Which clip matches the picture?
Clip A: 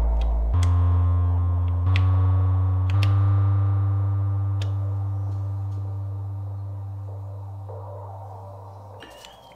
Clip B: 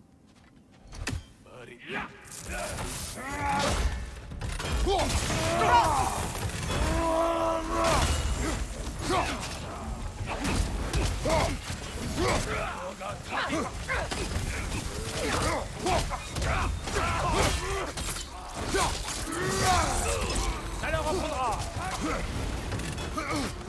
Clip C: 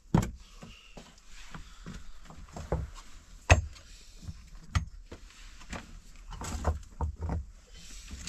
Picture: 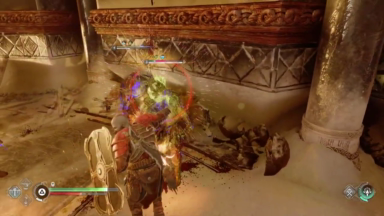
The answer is B